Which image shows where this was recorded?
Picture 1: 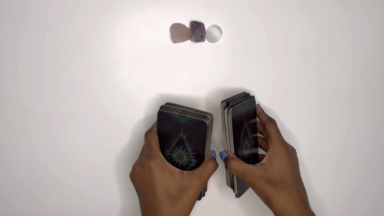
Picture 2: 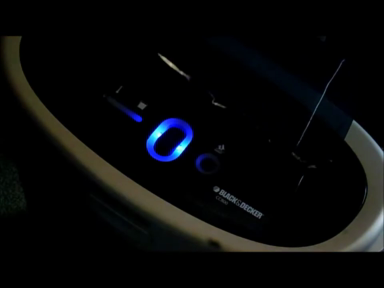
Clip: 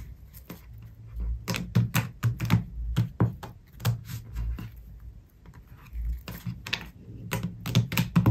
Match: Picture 1